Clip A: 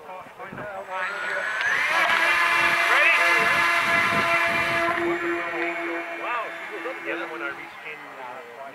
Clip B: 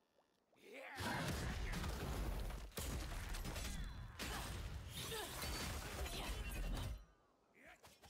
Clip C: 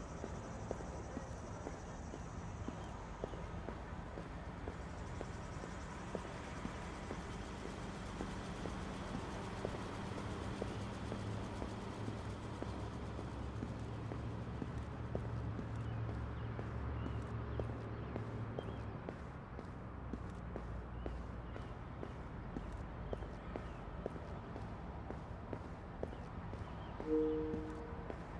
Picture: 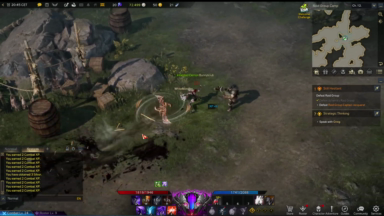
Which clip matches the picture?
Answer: B